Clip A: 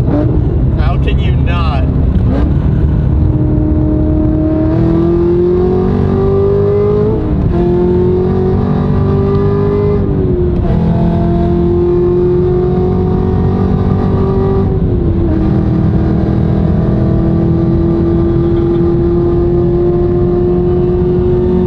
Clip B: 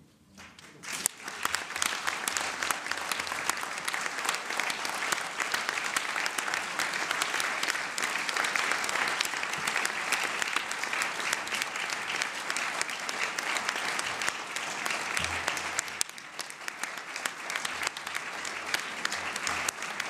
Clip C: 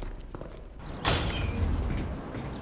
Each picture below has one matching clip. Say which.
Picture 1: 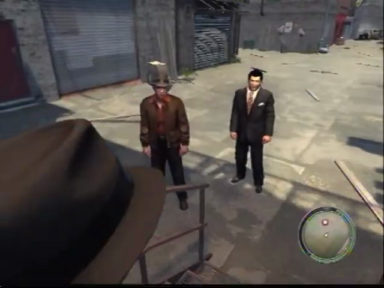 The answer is C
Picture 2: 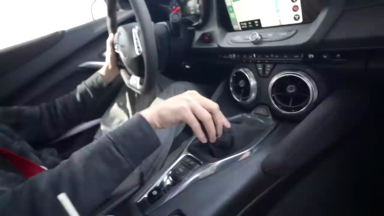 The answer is A